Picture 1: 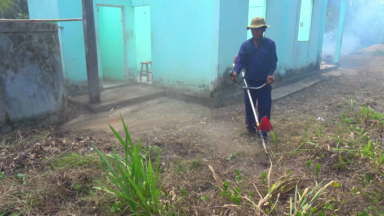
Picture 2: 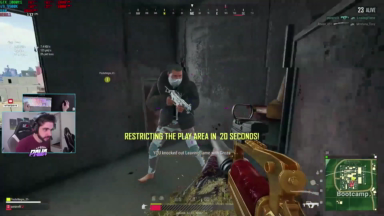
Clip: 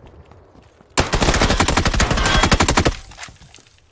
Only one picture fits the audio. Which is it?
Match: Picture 2